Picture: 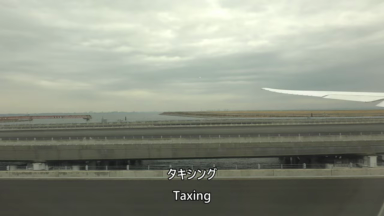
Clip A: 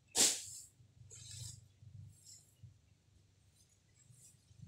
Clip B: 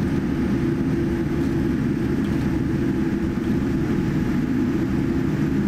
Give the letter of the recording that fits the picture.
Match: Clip B